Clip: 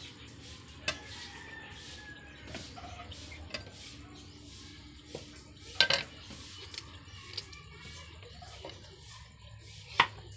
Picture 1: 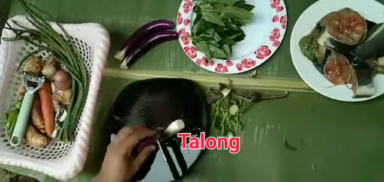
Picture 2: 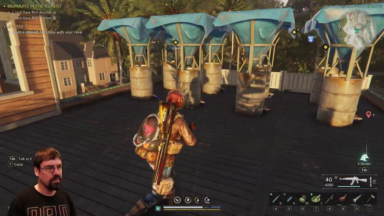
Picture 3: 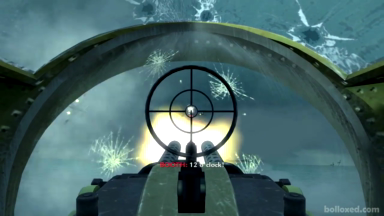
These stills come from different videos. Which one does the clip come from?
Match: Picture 1